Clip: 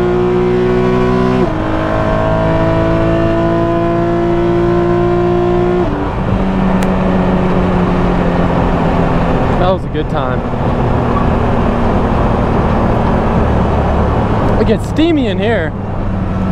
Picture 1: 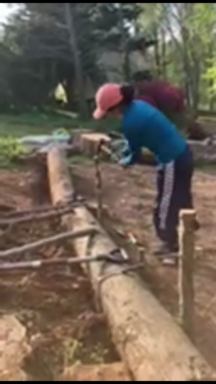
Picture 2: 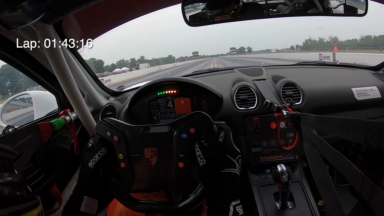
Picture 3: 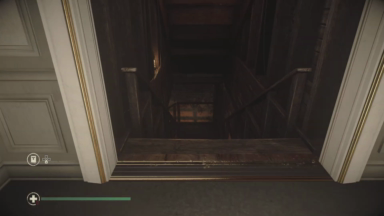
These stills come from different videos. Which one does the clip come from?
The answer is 2